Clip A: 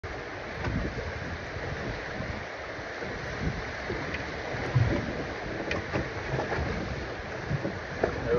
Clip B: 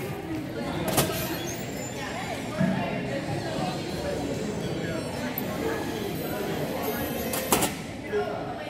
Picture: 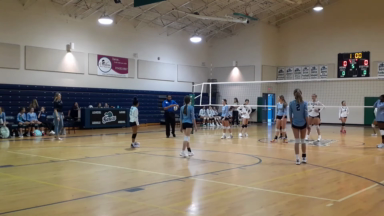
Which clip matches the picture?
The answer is B